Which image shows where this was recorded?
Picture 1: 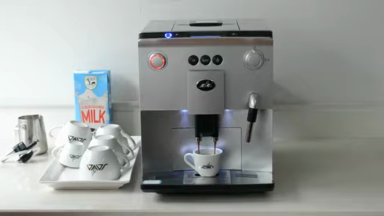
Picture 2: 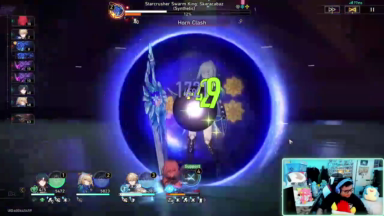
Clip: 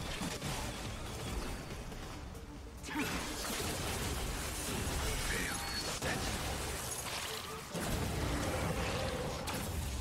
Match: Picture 2